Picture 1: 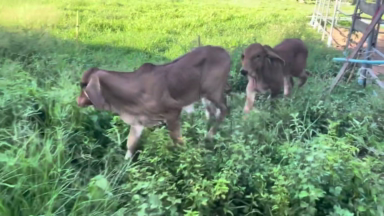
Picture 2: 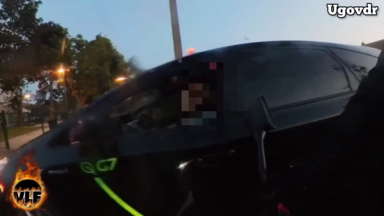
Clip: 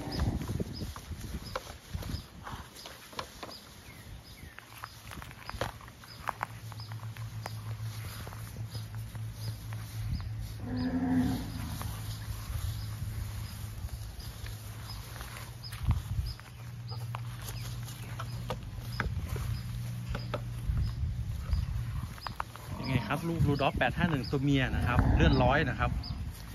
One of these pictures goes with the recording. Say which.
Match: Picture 1